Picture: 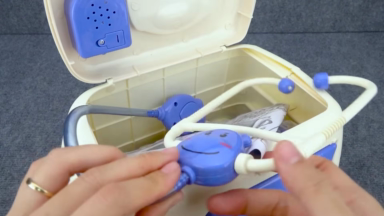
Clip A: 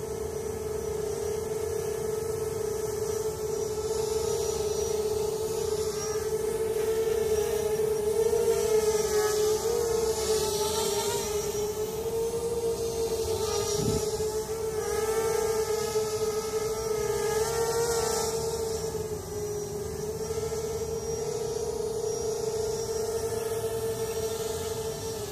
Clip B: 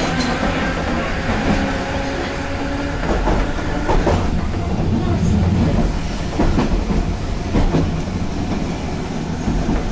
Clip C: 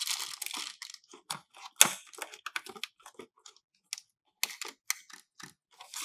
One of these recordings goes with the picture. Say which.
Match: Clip C